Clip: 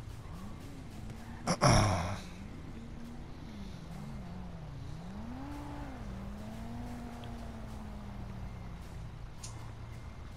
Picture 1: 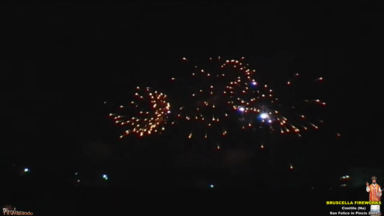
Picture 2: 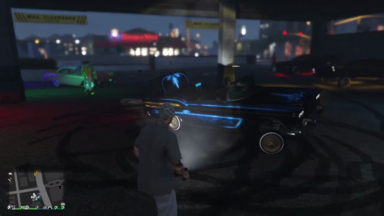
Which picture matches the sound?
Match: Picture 2